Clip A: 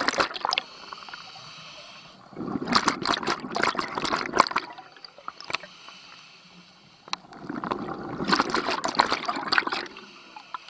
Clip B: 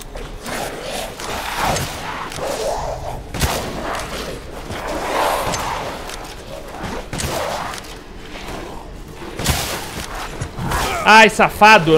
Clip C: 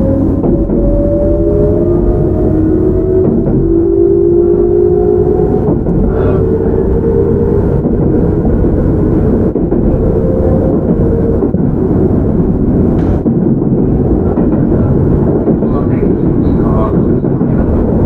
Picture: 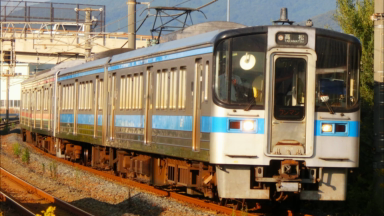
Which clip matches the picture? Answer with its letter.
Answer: C